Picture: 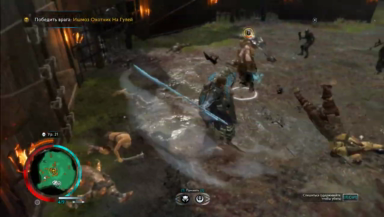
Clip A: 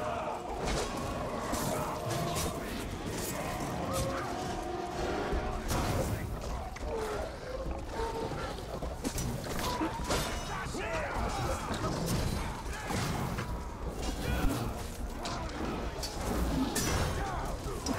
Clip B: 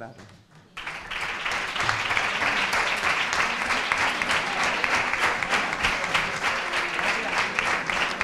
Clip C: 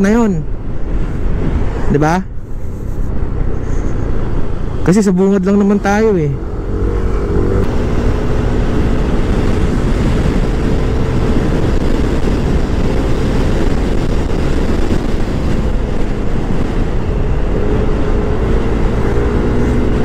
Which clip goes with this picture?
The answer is A